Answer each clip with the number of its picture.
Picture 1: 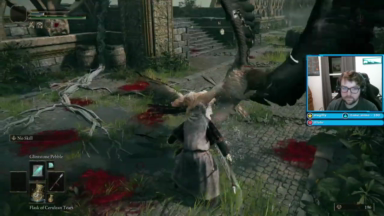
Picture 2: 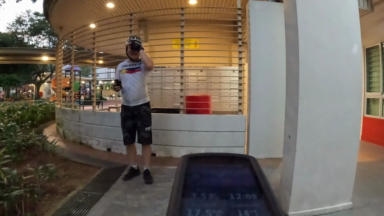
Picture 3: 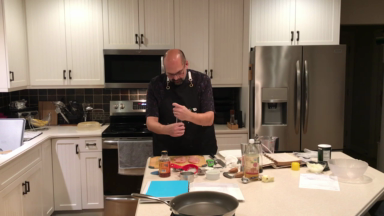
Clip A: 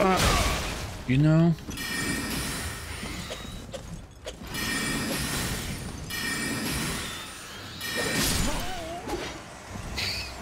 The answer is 1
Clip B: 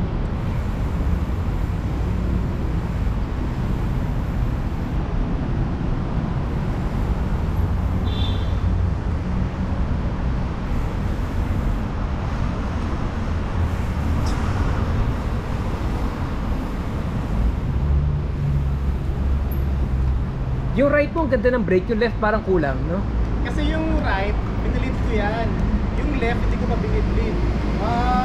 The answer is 2